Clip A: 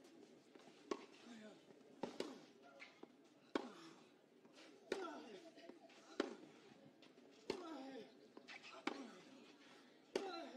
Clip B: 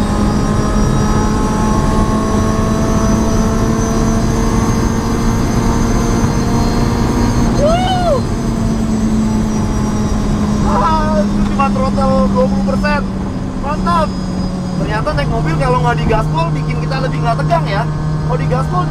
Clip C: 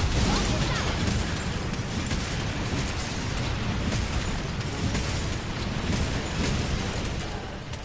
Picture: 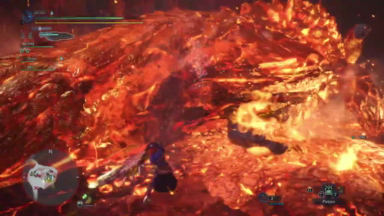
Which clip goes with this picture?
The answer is C